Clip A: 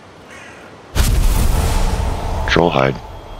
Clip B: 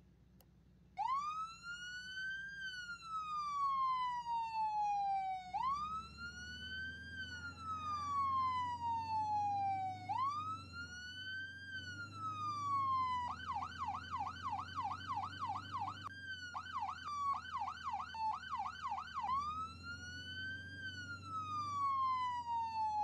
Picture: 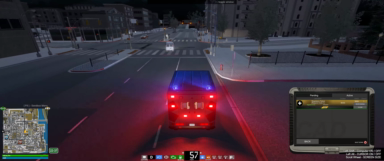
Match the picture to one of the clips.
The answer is B